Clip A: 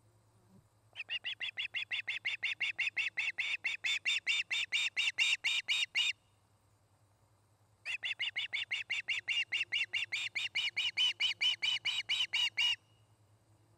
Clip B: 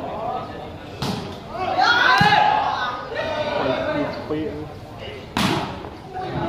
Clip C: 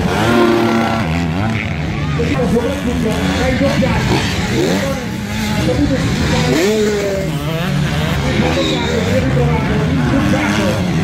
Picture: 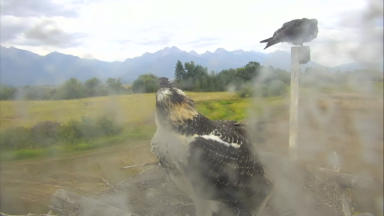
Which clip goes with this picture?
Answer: A